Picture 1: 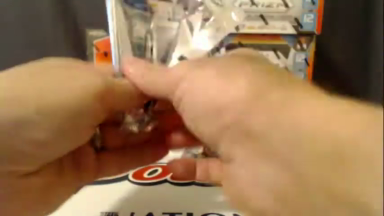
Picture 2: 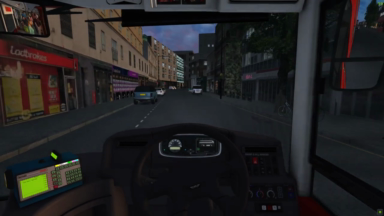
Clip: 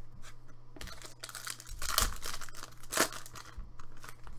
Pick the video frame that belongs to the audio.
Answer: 1